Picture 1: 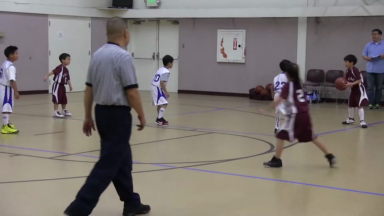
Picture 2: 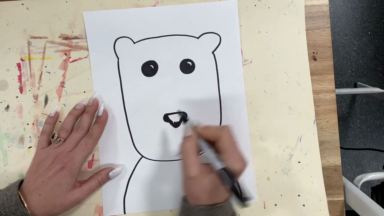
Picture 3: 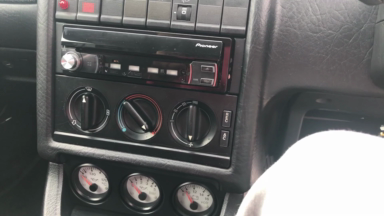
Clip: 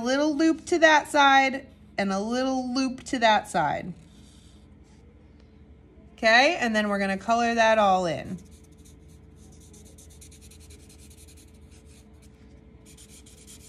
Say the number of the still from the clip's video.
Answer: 2